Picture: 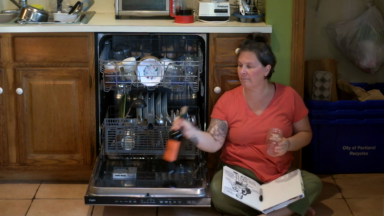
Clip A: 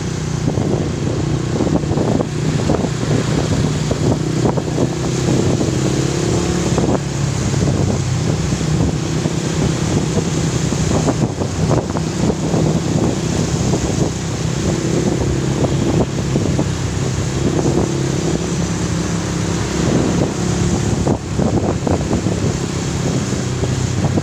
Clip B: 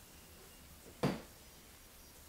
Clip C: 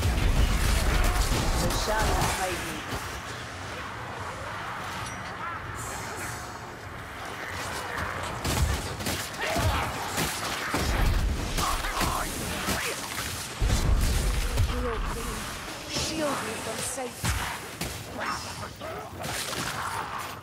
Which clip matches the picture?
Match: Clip B